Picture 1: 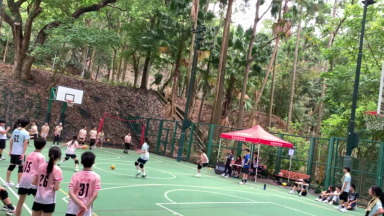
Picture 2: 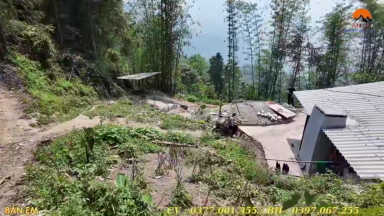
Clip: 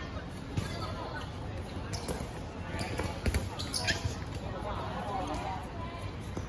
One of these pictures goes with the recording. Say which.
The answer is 1